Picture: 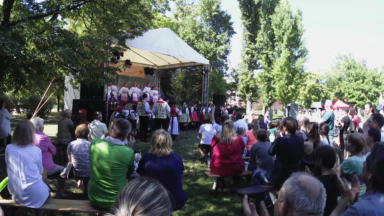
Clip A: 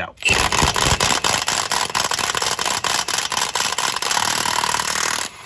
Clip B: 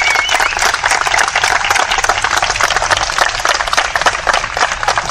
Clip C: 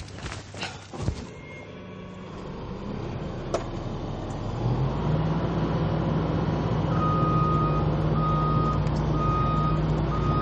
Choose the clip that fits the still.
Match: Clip B